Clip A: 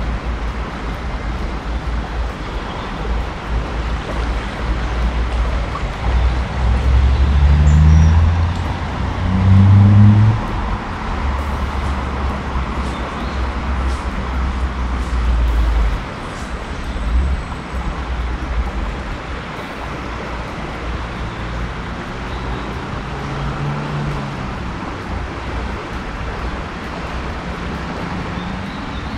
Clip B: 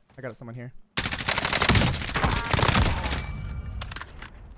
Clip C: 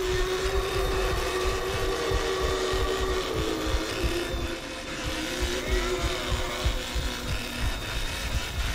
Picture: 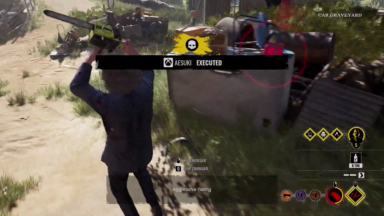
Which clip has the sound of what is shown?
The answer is C